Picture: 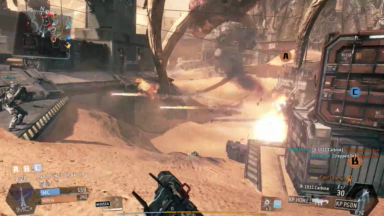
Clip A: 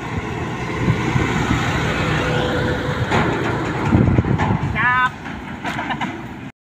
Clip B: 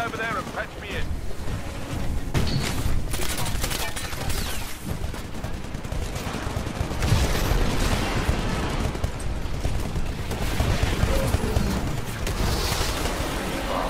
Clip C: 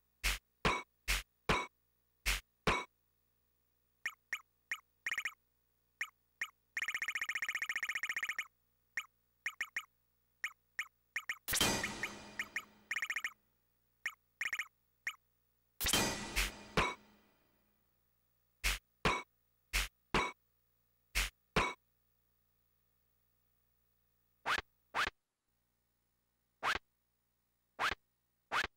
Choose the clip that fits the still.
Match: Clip B